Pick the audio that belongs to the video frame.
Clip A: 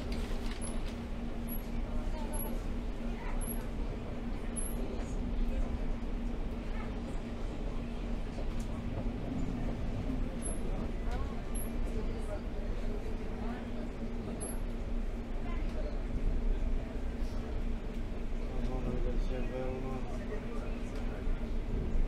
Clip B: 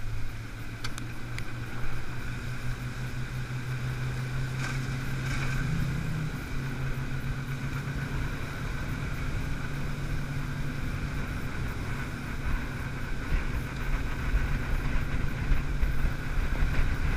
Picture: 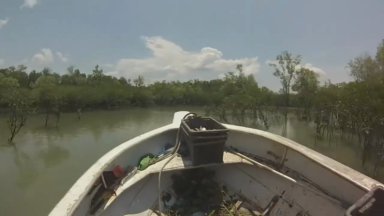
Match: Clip B